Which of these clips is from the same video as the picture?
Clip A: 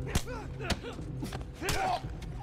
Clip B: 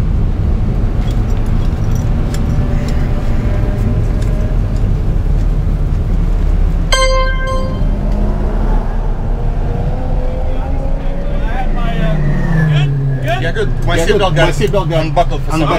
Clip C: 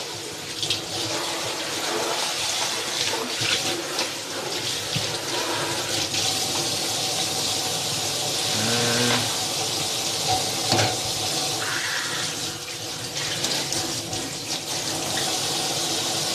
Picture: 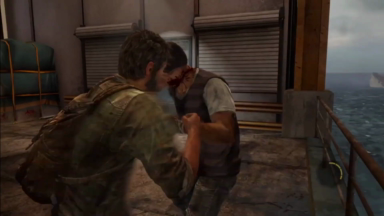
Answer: A